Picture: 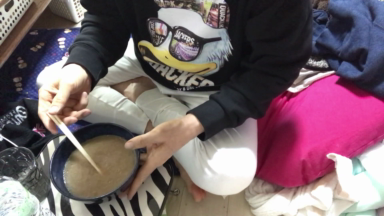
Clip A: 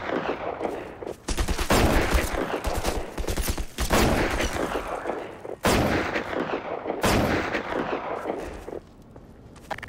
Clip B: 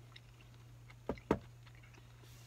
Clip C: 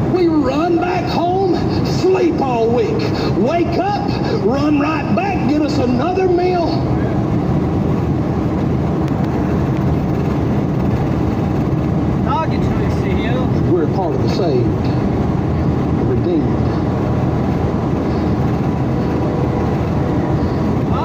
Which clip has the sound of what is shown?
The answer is B